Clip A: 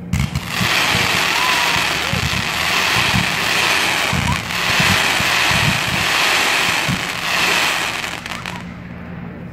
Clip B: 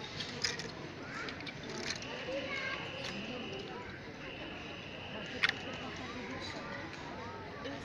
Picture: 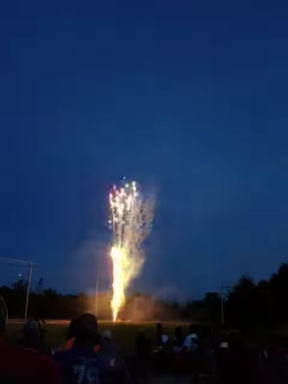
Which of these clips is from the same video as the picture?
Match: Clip A